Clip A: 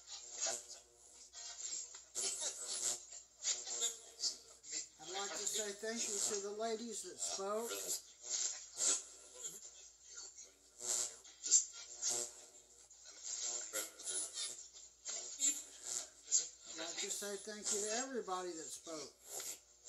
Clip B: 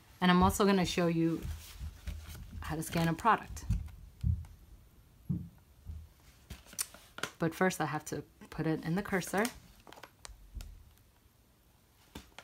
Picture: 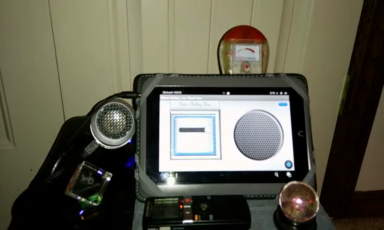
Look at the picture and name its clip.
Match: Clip A